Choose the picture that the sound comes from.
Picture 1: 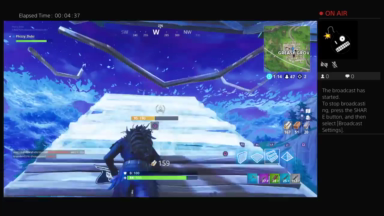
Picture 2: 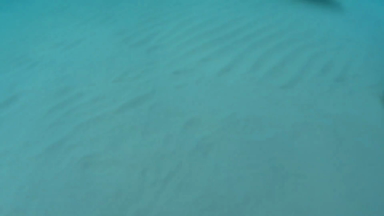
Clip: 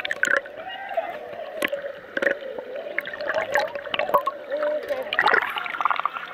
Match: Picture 2